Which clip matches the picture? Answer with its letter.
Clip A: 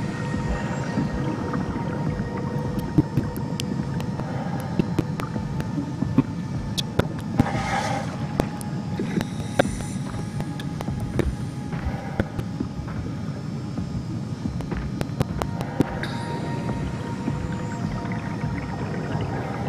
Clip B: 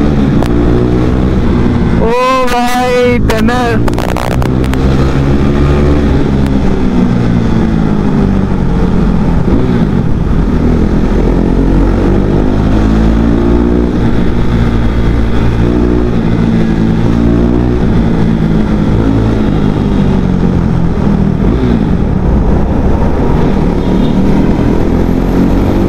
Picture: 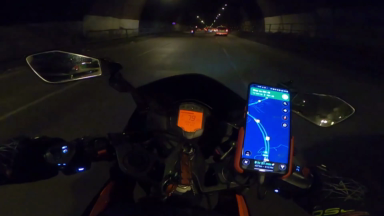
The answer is B